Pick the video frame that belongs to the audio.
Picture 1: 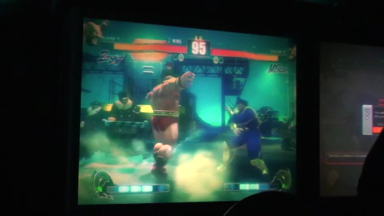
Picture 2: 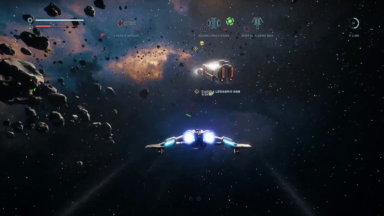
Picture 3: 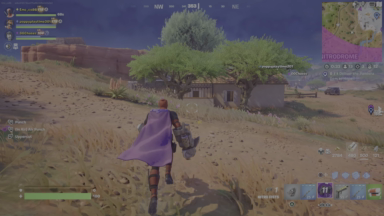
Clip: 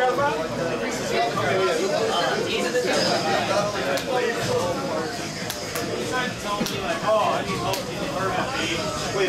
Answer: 1